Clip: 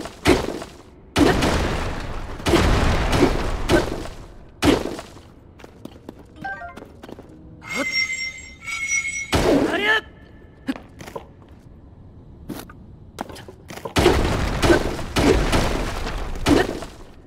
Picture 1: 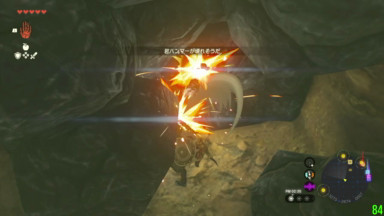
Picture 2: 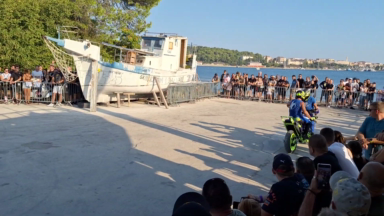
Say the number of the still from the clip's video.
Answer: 1